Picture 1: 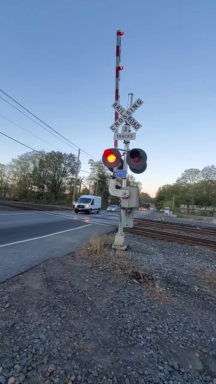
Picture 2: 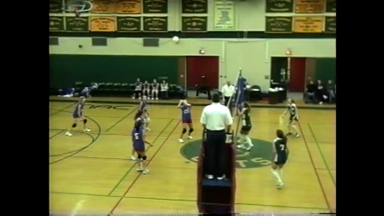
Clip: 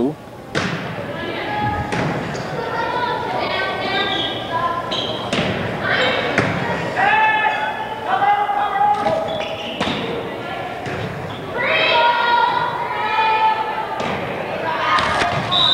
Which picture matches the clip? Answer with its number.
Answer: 2